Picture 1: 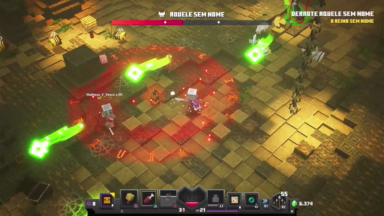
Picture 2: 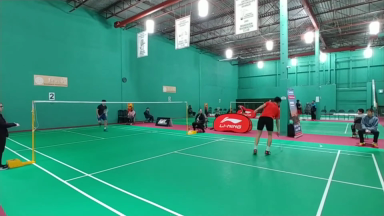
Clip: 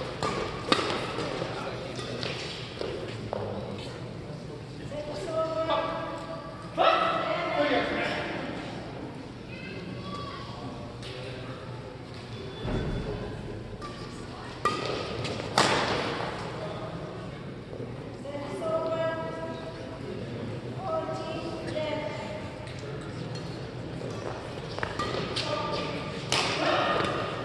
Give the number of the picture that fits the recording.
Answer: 2